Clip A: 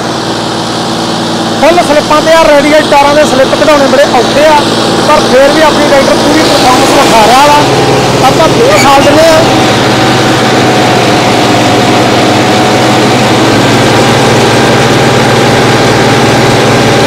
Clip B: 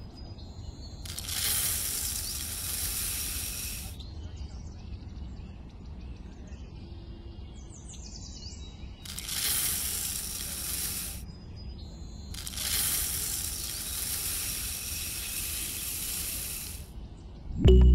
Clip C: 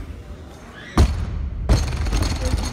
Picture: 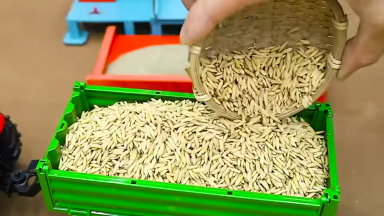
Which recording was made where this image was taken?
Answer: B